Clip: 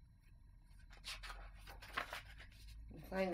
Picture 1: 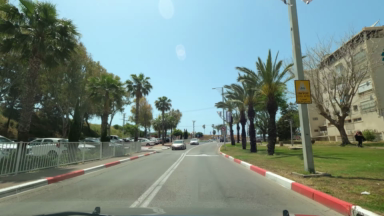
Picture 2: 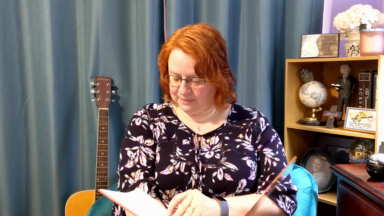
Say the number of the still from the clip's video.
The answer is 2